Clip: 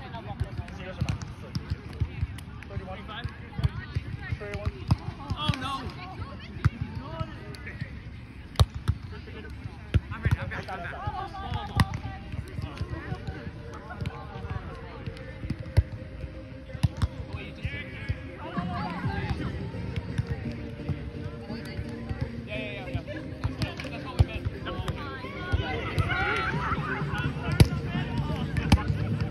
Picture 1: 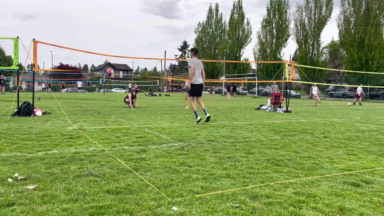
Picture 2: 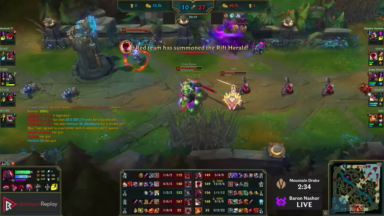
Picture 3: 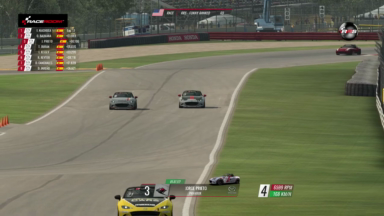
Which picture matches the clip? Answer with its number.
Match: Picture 1